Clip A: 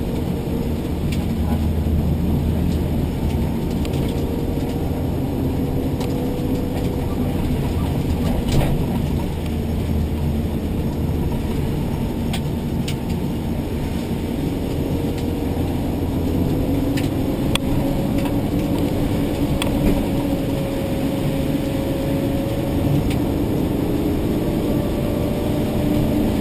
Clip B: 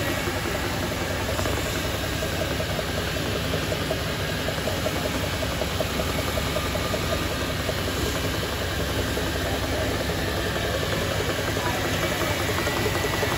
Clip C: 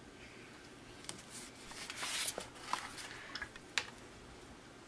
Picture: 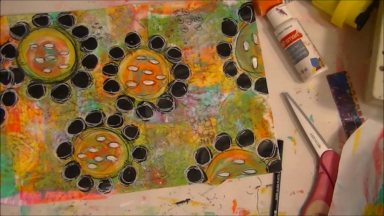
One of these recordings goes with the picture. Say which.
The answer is C